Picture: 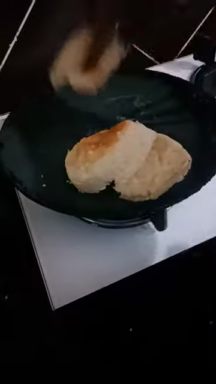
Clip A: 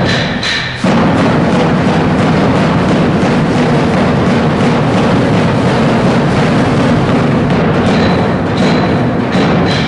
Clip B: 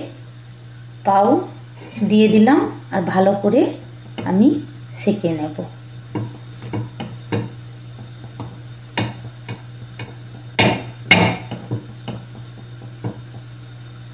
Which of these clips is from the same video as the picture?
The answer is B